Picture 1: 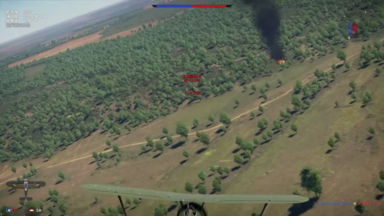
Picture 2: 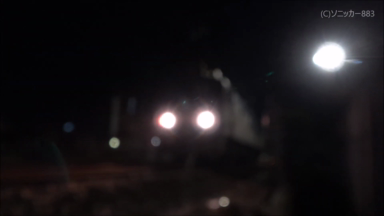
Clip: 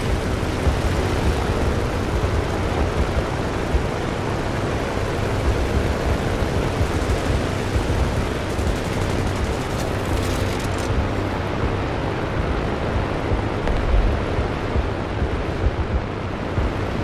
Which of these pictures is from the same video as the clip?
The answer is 1